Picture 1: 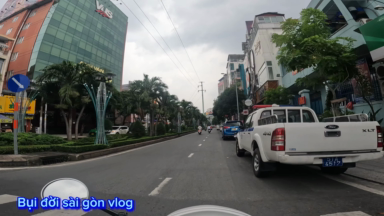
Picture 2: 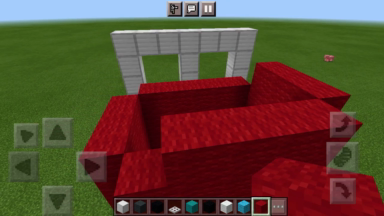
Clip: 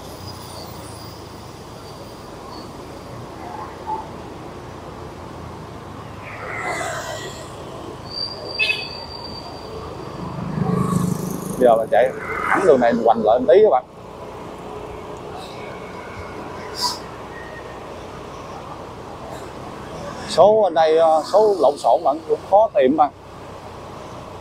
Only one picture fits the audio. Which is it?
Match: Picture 1